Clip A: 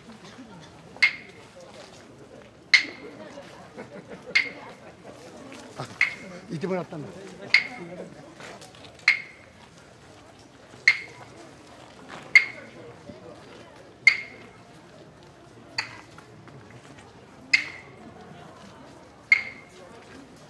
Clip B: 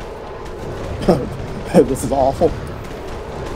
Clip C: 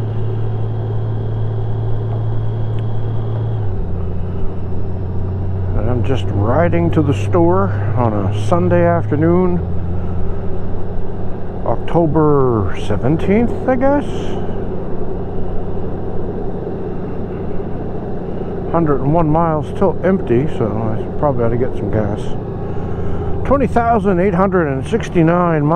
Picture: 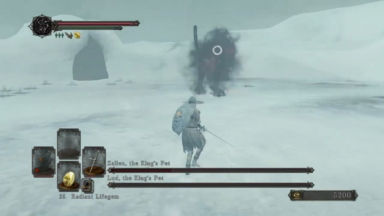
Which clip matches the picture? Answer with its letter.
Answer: B